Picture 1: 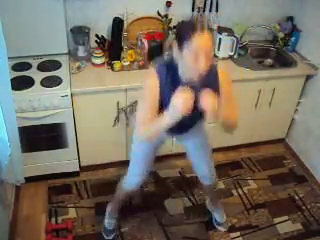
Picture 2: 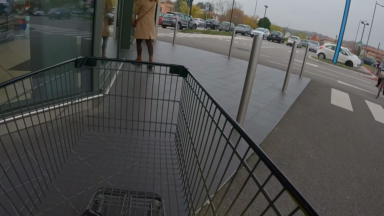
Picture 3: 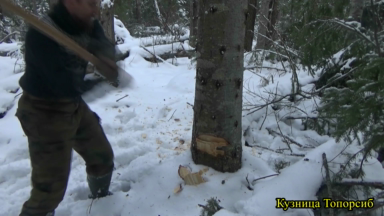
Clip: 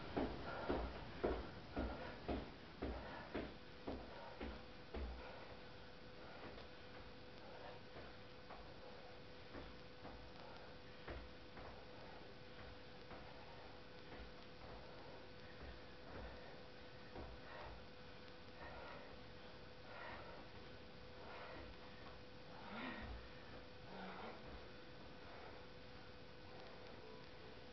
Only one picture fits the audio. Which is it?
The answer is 1